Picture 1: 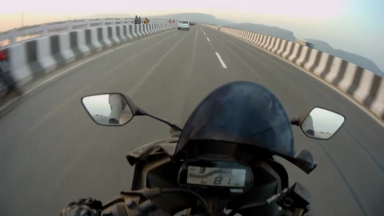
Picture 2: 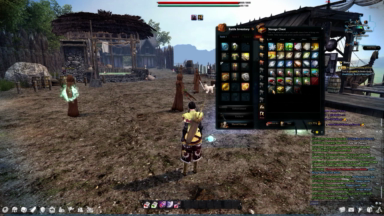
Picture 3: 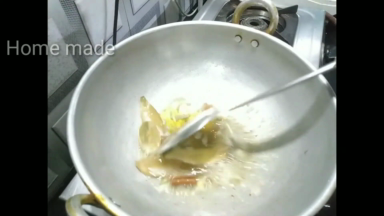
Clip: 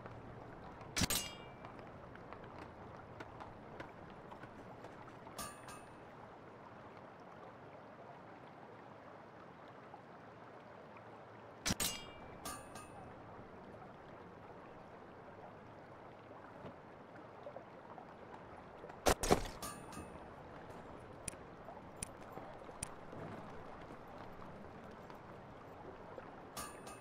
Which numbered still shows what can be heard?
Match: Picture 2